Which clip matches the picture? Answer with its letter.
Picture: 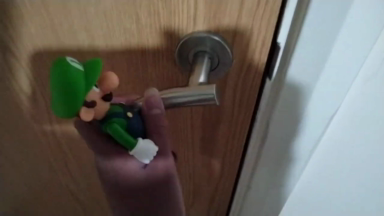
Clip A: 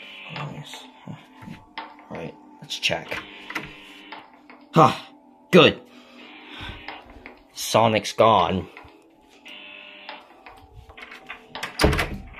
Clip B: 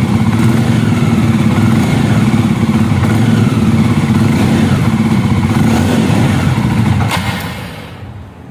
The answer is A